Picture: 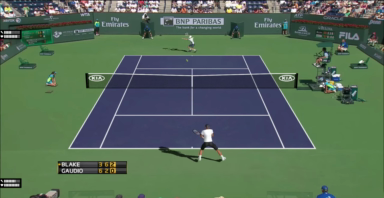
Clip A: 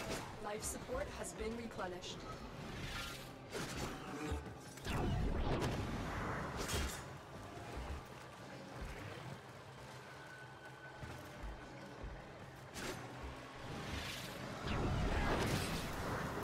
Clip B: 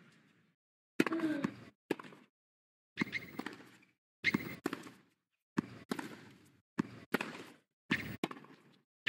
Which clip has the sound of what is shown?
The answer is B